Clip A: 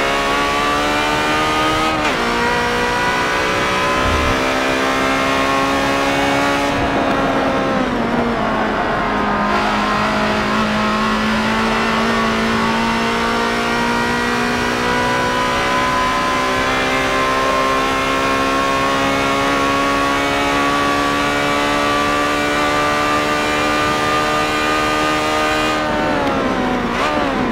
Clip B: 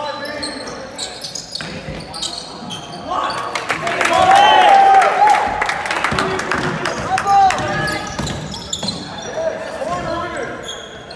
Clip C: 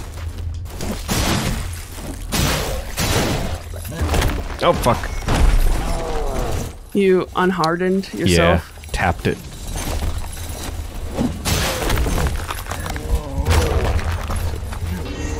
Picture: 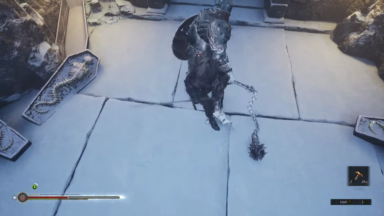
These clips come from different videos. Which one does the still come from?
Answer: C